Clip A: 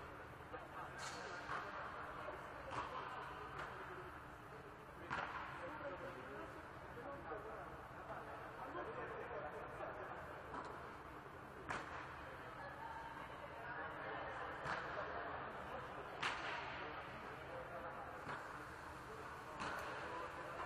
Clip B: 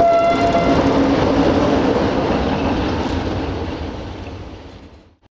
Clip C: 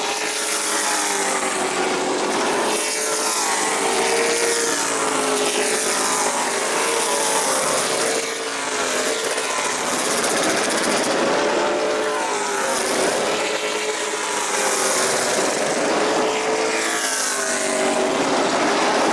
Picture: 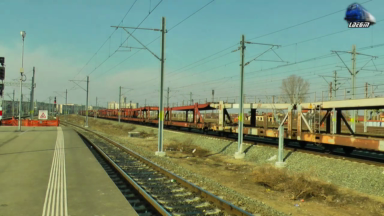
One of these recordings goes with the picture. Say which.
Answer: B